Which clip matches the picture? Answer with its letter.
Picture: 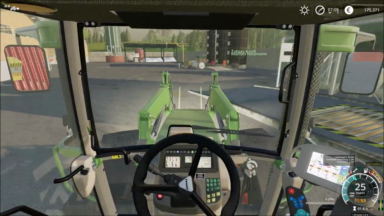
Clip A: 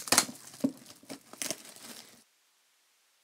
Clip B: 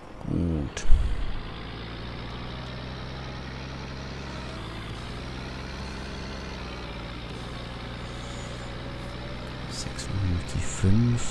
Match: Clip B